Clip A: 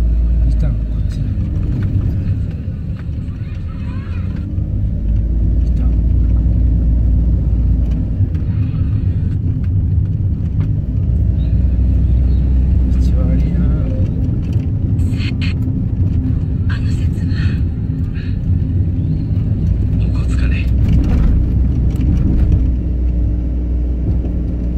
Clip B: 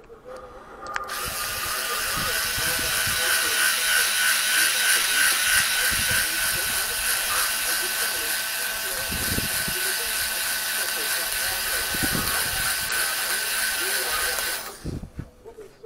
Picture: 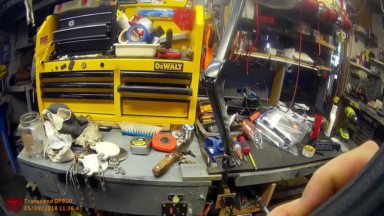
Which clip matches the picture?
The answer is B